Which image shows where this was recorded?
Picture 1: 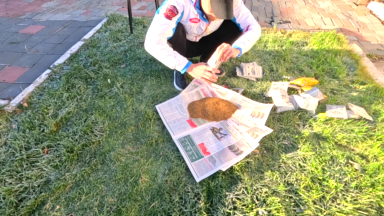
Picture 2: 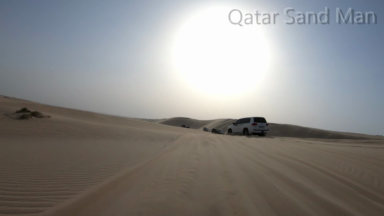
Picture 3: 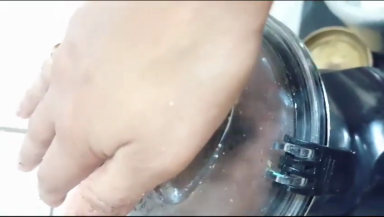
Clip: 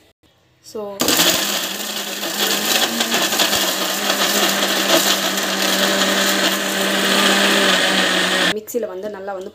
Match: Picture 3